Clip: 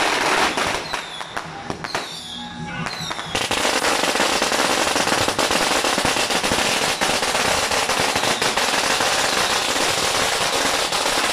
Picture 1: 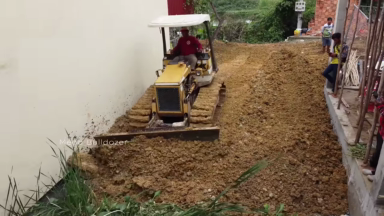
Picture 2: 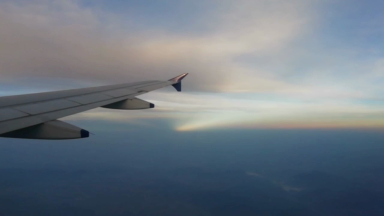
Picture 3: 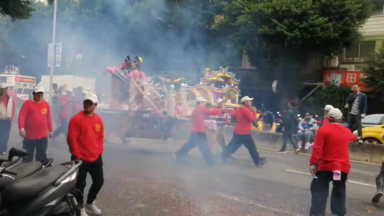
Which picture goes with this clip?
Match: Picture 3